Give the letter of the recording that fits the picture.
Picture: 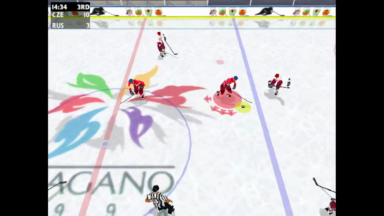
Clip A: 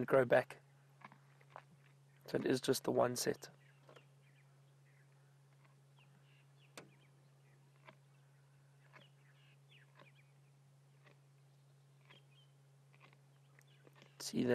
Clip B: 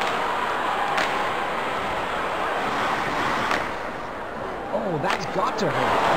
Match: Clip B